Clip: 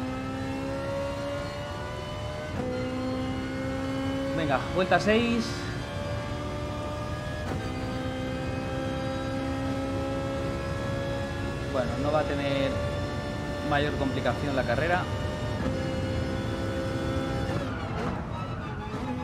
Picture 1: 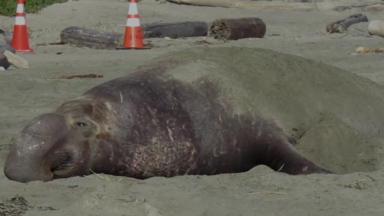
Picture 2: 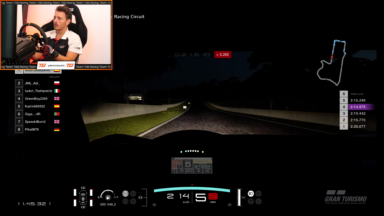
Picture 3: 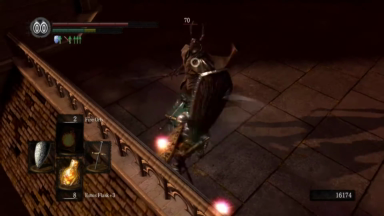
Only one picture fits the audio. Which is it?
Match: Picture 2